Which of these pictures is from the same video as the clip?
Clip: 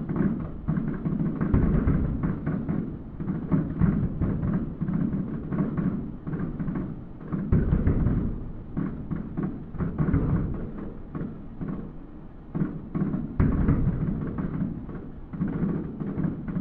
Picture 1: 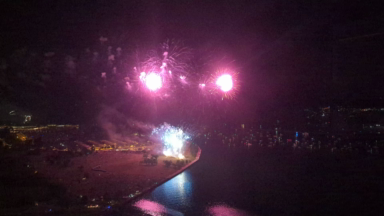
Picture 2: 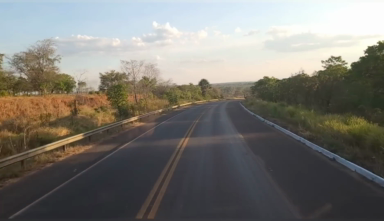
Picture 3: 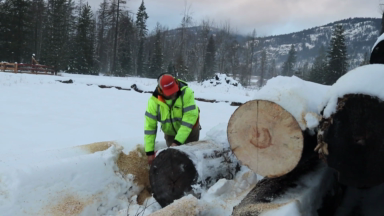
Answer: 1